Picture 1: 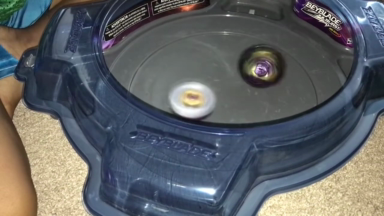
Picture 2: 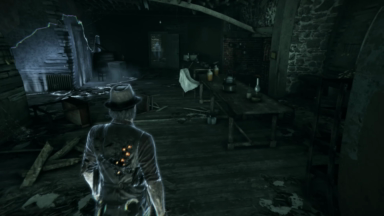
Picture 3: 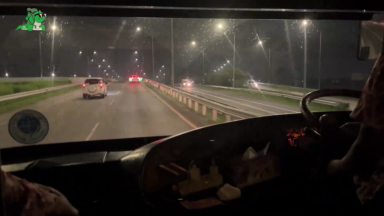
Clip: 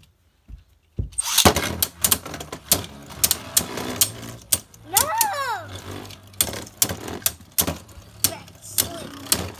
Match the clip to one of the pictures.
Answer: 1